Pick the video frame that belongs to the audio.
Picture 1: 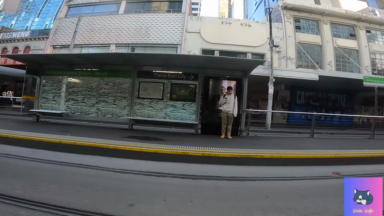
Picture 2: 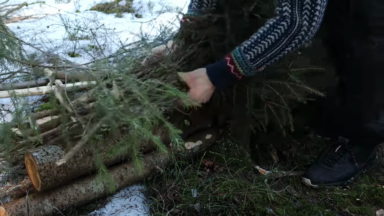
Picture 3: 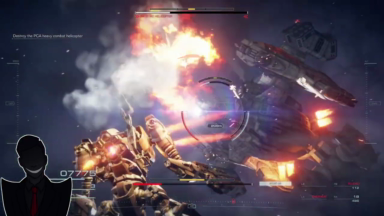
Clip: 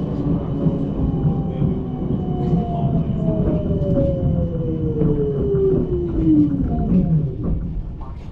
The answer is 1